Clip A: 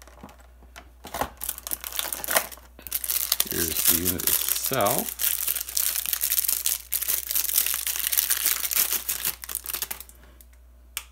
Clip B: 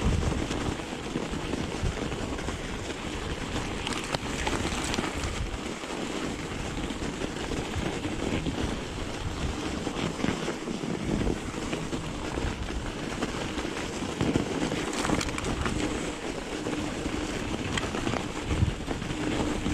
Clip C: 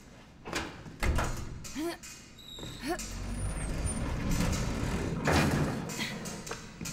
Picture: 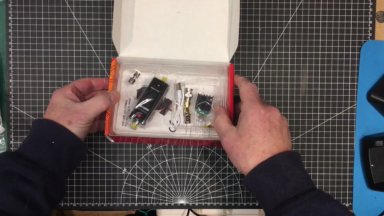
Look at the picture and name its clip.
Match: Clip A